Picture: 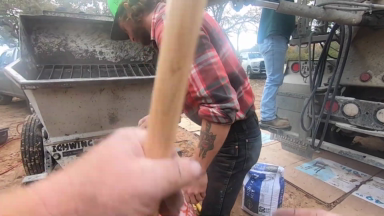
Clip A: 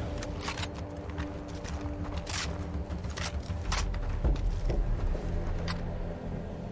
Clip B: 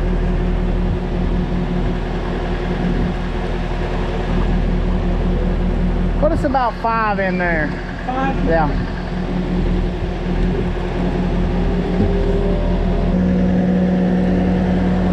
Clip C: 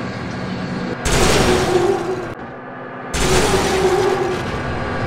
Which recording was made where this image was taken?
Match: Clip B